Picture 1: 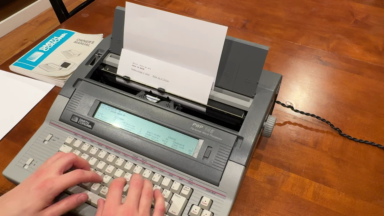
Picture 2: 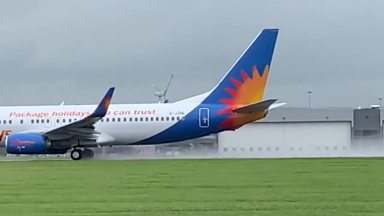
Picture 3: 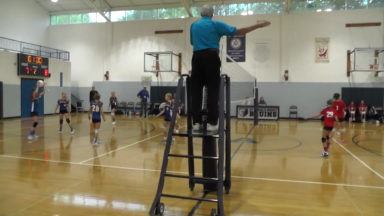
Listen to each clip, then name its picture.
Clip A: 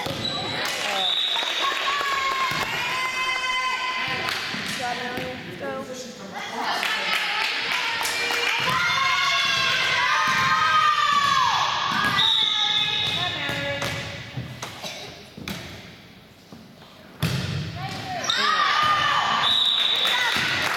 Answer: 3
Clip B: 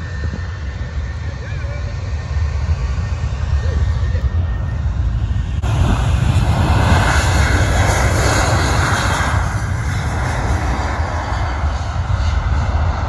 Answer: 2